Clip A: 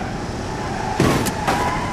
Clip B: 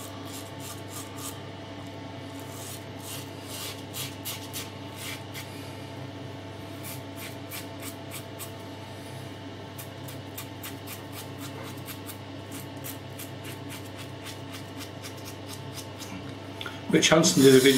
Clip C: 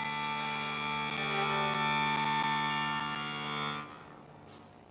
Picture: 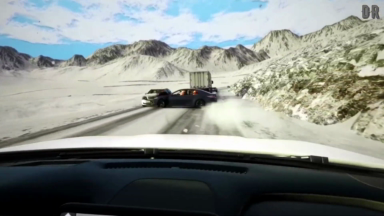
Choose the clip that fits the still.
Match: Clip A